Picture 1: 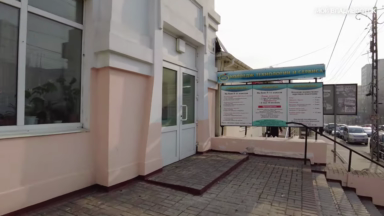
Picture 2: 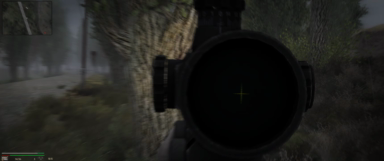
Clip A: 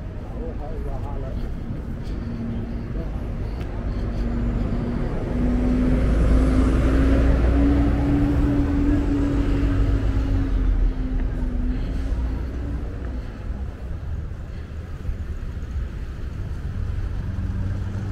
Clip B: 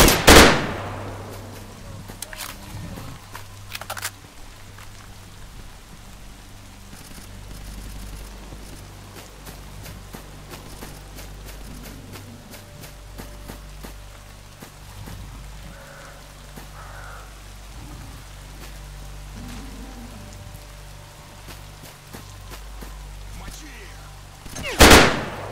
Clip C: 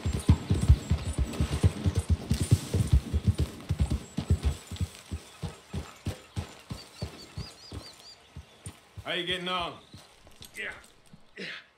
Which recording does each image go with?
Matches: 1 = A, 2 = B